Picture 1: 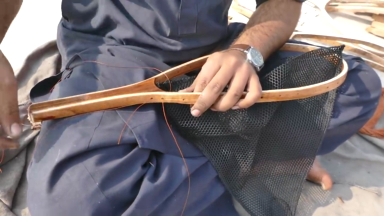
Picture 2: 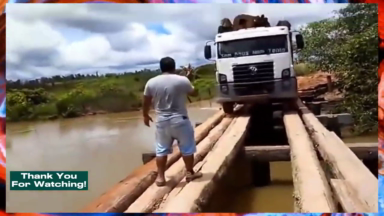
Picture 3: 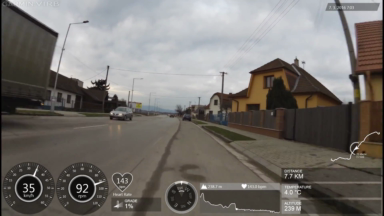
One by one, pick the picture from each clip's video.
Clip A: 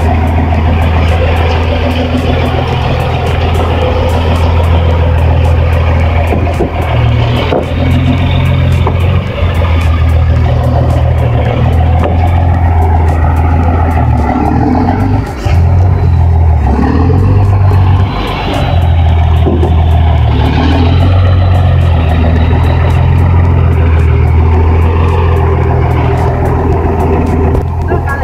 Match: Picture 2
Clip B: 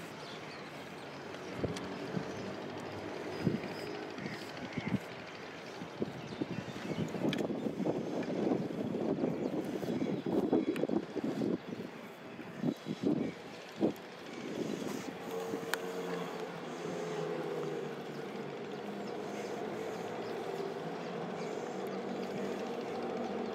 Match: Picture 1